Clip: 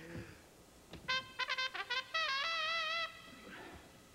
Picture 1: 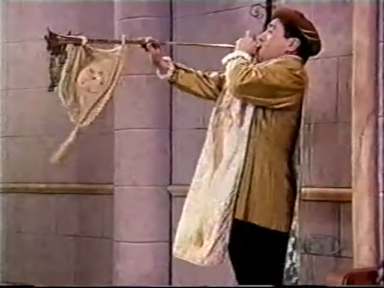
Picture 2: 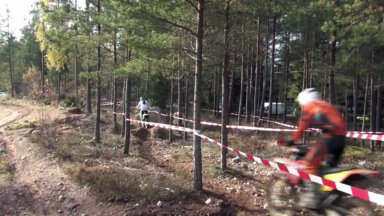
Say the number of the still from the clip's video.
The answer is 1